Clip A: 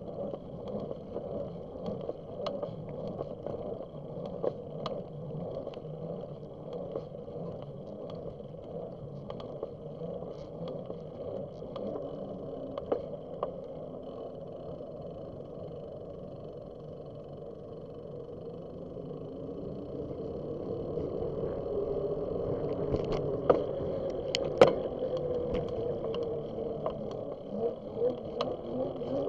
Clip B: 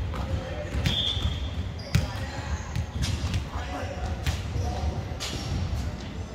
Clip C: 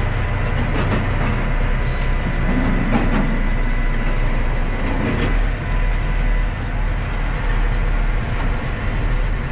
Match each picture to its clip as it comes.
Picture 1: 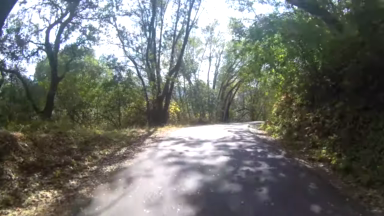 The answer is A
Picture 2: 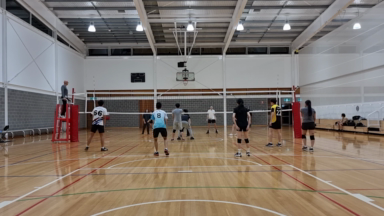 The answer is B